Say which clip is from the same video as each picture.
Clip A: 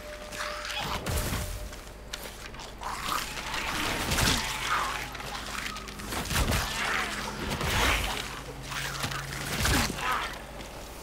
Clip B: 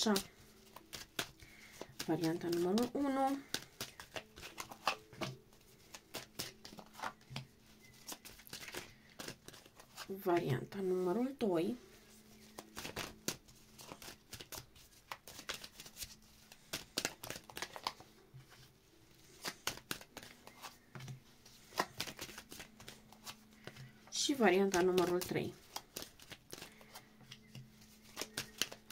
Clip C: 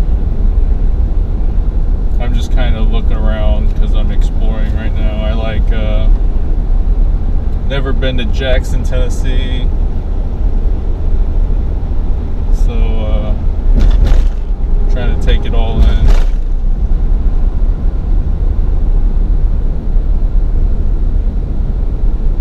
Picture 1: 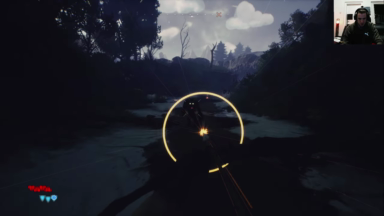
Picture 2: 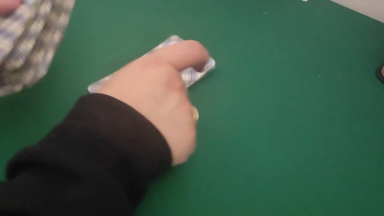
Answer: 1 A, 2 B